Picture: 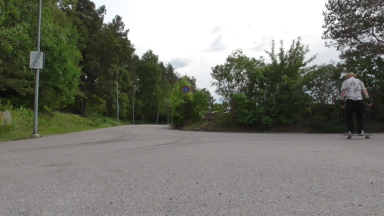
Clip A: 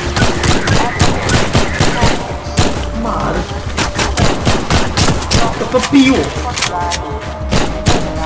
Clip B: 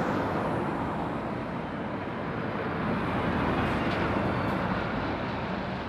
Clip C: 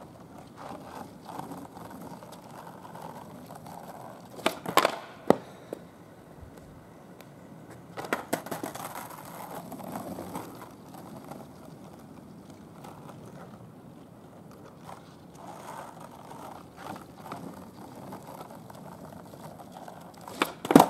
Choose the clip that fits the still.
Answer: C